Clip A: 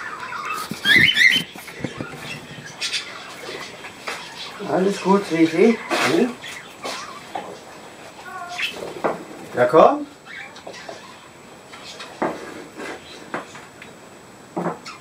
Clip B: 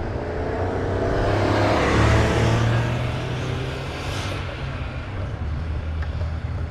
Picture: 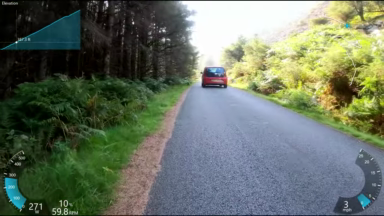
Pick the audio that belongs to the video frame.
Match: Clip B